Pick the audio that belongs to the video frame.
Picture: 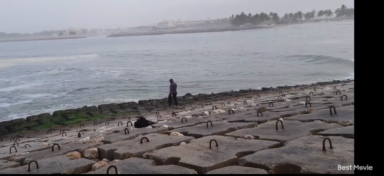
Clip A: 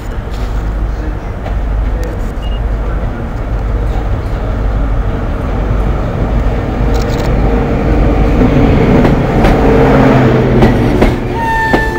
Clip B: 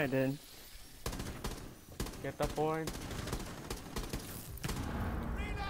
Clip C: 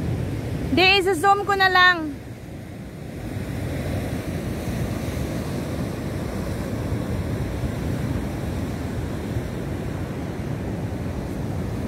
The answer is C